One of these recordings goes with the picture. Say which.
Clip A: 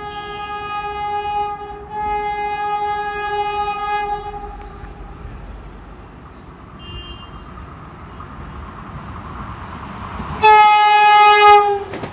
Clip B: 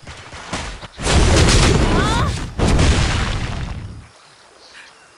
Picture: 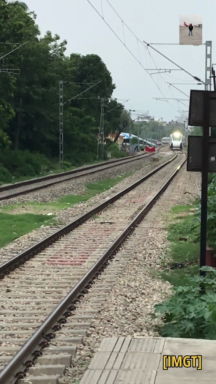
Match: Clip A